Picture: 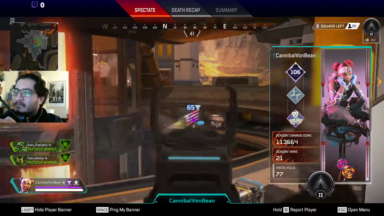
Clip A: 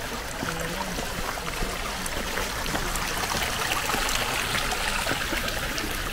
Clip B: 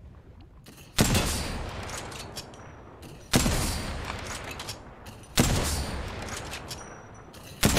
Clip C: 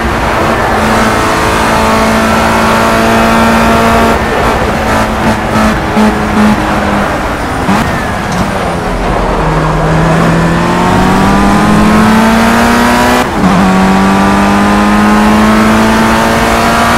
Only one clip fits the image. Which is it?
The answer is B